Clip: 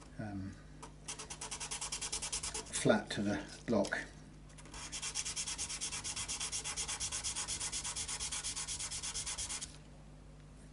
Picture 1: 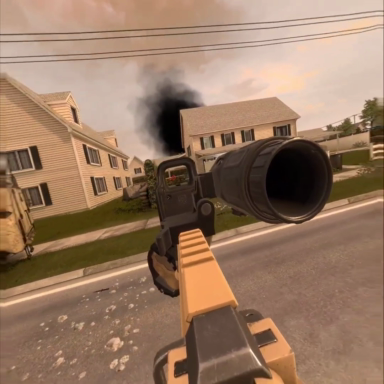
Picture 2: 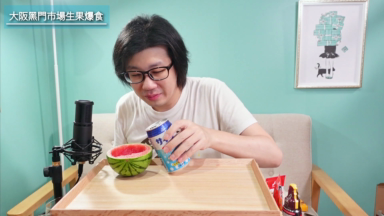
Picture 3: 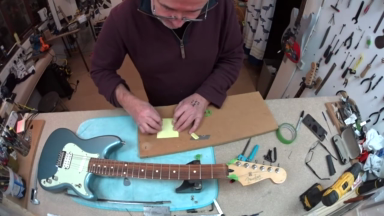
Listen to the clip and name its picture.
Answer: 3